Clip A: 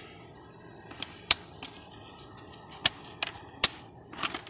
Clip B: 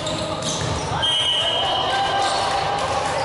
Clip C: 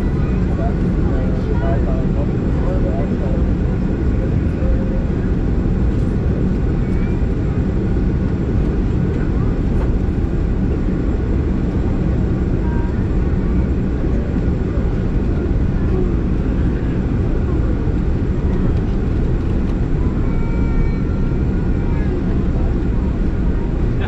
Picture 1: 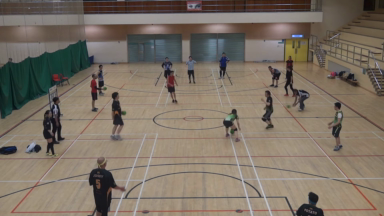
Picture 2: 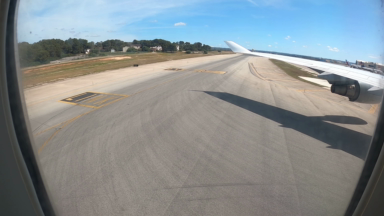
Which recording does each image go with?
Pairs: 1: B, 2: C